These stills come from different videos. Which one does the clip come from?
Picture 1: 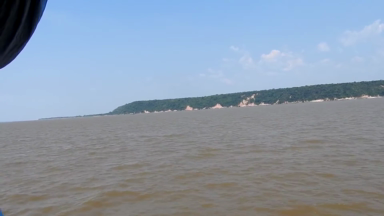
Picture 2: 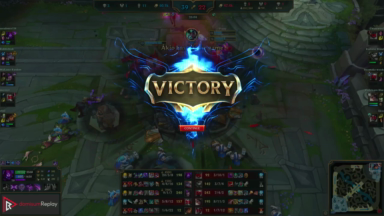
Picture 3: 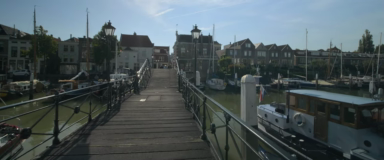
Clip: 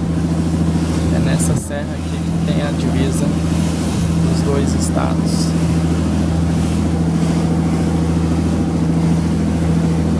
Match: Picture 1